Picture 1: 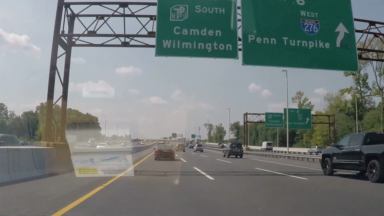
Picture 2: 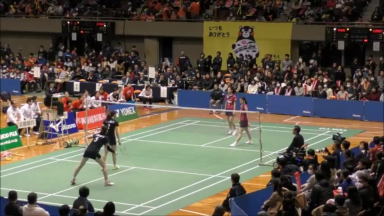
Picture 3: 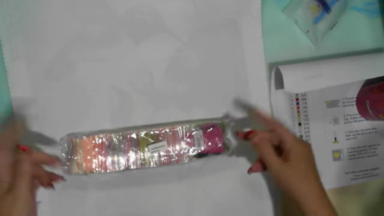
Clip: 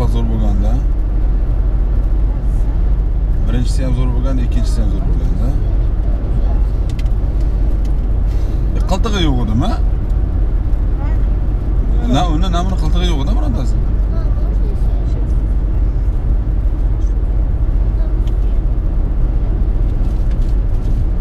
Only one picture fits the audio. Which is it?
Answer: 1